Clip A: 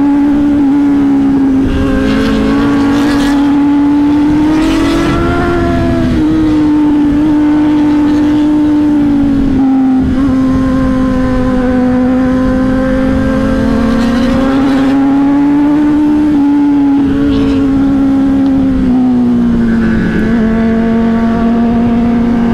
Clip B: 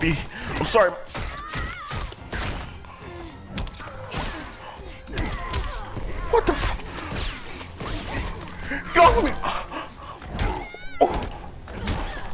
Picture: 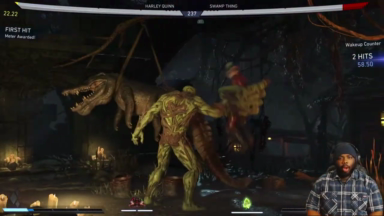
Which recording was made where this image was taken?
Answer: B